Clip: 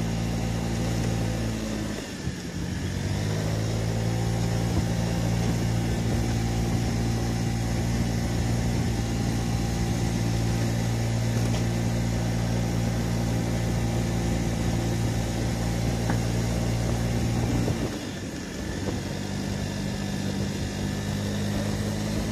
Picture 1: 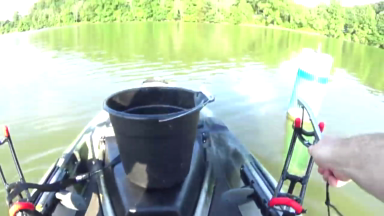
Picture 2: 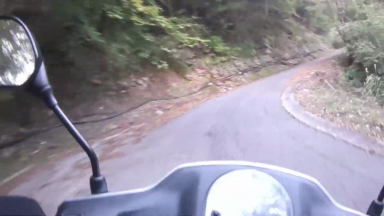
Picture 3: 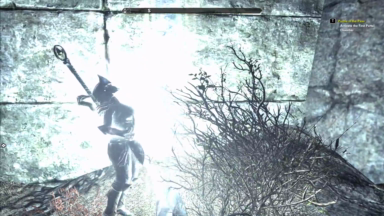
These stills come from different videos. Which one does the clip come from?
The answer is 2